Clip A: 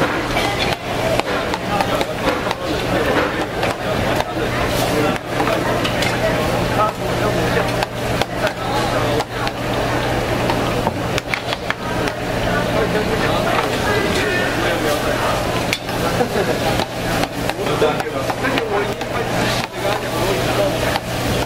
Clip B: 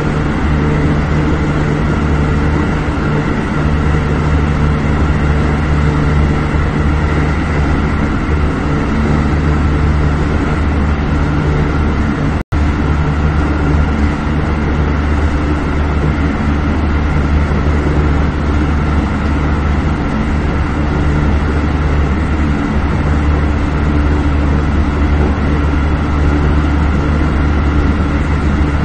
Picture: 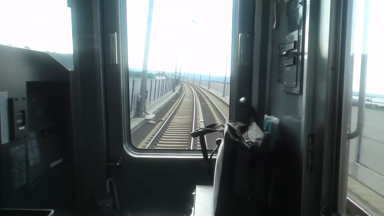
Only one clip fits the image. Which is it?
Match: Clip B